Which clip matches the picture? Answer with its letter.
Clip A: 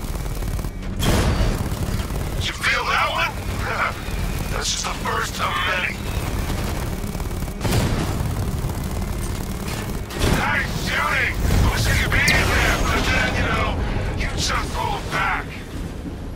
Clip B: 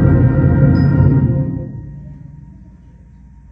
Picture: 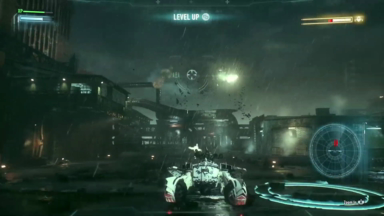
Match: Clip A